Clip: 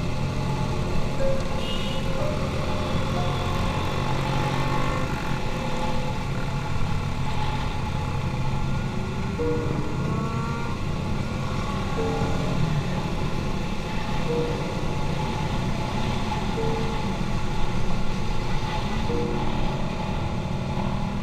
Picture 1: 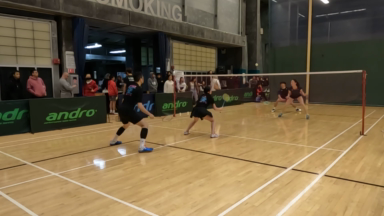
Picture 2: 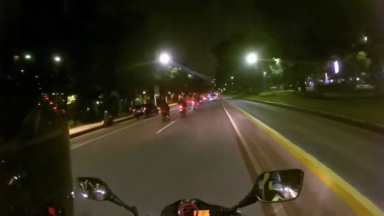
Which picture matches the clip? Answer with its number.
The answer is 2